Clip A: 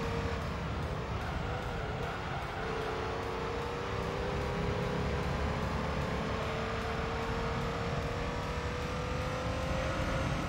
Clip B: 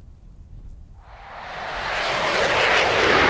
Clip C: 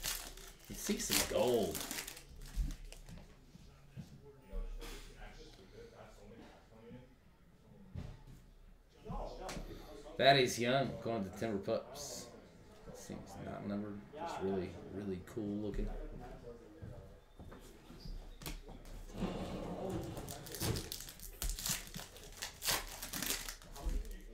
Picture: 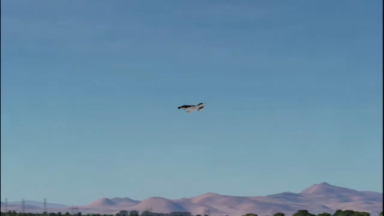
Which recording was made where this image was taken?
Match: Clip B